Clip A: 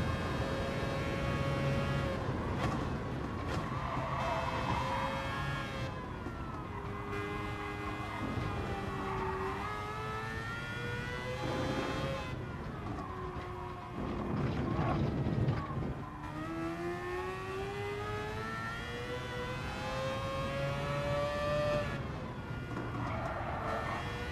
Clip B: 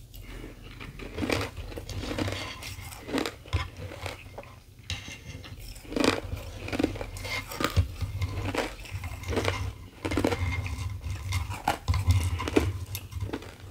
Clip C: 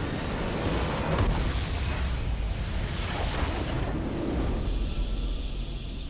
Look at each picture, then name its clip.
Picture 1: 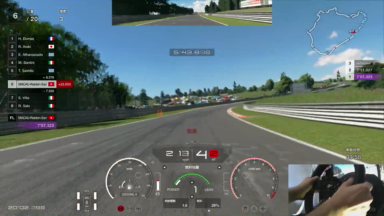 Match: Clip A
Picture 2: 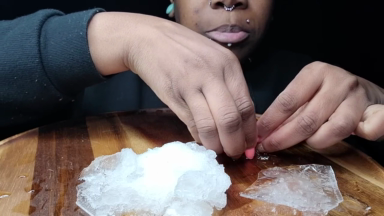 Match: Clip B